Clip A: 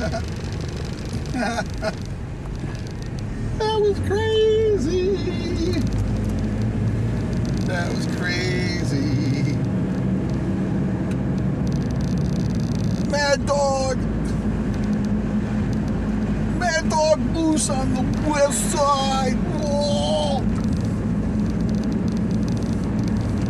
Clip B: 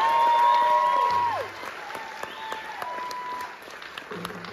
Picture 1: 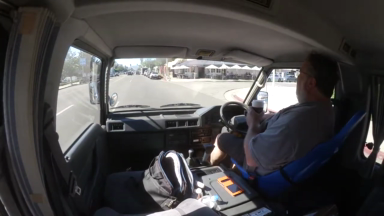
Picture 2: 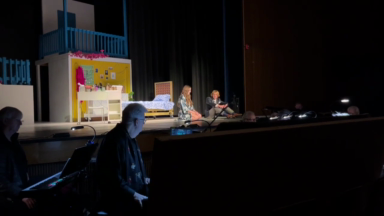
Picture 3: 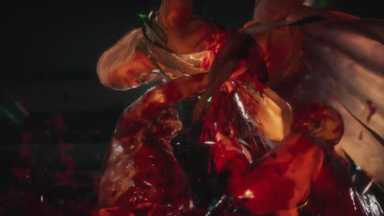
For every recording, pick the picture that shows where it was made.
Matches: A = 1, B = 2